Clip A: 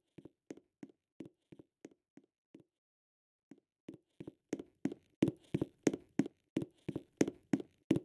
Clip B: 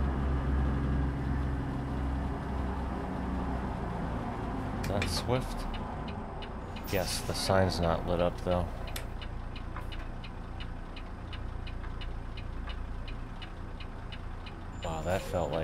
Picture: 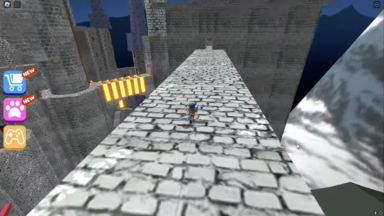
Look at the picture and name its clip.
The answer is A